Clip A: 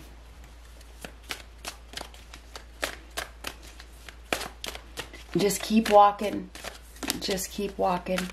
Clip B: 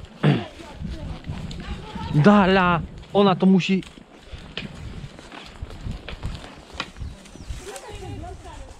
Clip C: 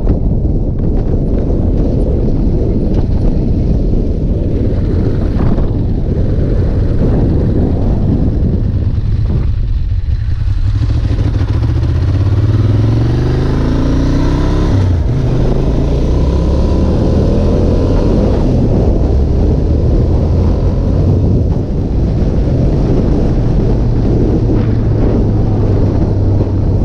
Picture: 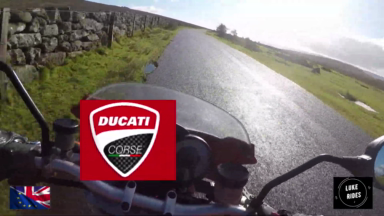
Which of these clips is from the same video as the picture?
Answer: C